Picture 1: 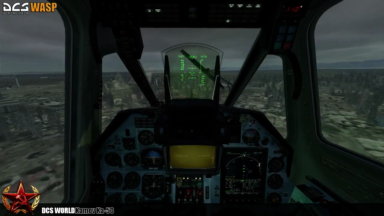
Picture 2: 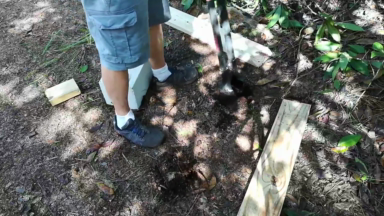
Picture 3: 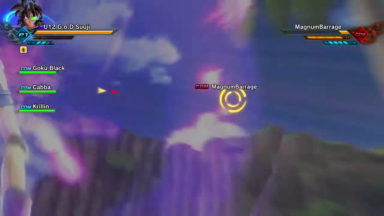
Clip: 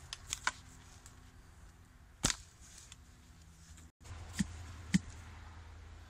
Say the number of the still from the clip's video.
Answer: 2